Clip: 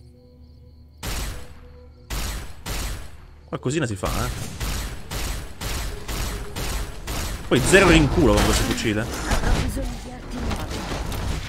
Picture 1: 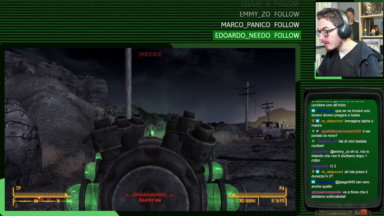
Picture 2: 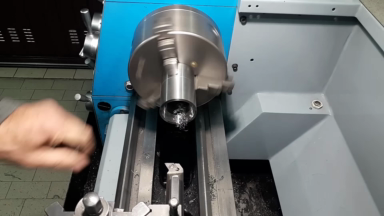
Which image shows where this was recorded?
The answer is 1